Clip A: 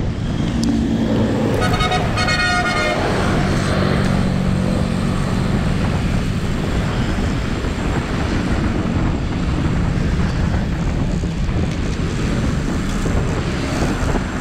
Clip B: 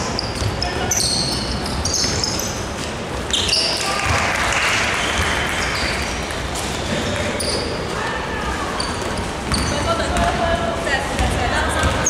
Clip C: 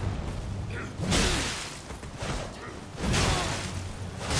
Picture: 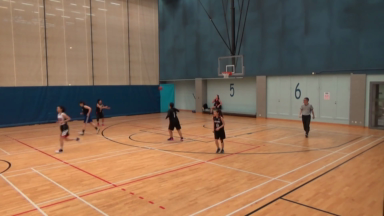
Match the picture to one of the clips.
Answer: B